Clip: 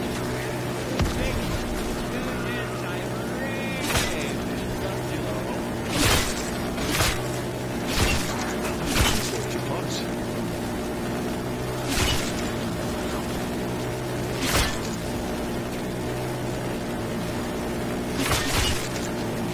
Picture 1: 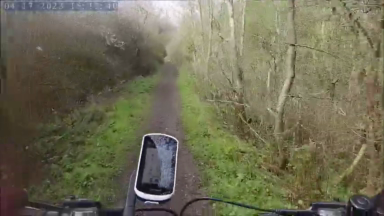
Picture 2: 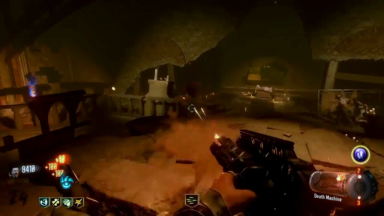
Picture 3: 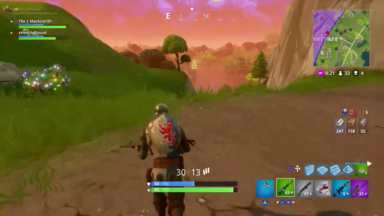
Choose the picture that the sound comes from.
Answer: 2